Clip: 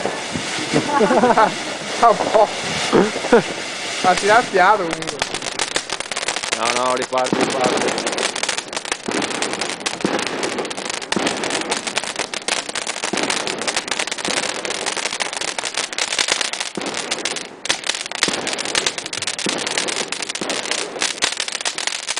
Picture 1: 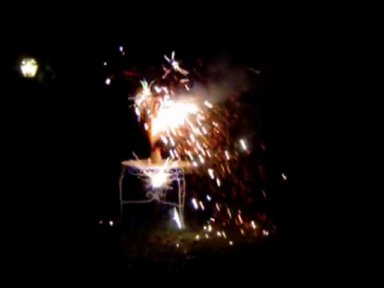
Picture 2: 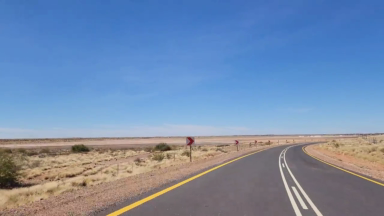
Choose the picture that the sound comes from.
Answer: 1